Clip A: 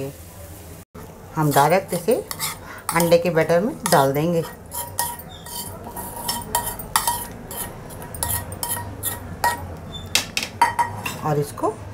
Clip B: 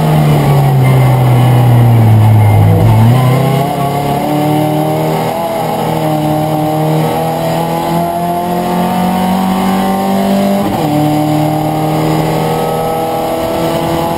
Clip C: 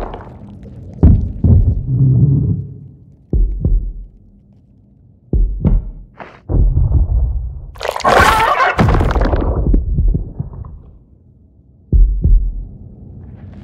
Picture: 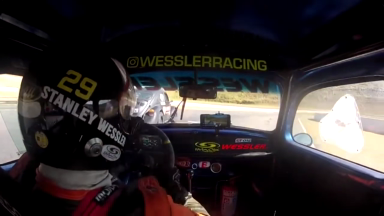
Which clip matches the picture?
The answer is B